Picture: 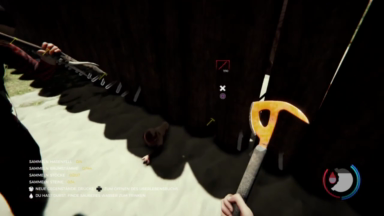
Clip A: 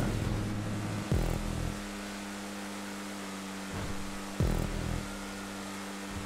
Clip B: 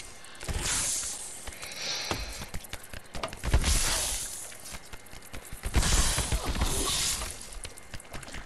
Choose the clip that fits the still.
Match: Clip B